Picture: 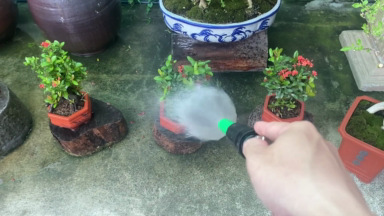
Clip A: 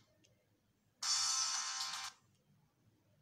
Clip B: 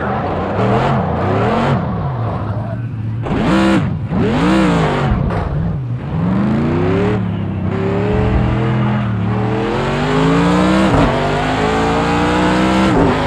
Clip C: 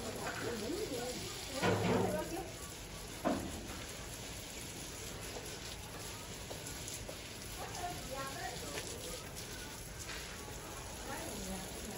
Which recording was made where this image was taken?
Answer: C